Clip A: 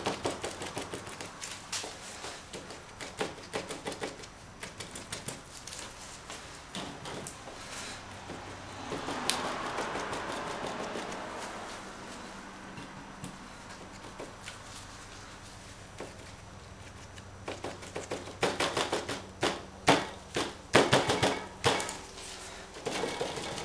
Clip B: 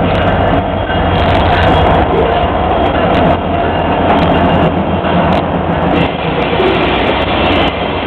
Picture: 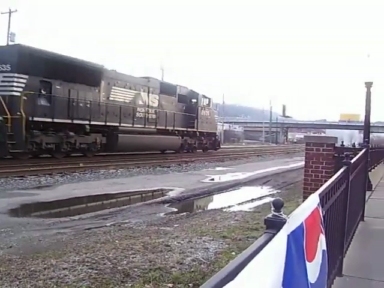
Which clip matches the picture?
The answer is B